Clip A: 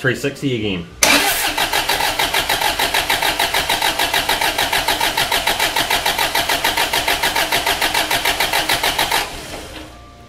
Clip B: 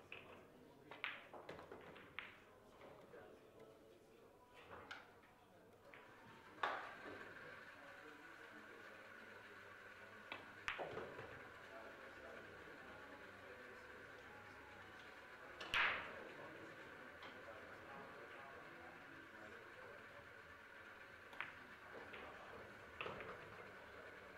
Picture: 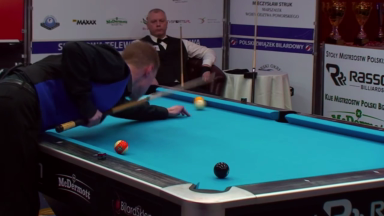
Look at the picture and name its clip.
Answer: B